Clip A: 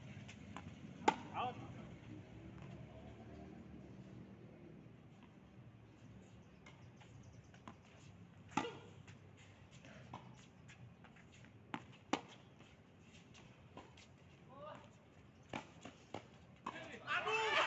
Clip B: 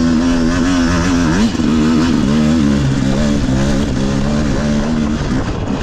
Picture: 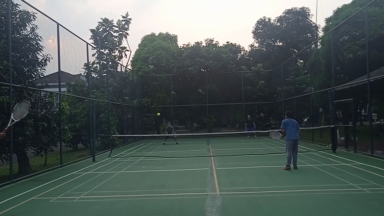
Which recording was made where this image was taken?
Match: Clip A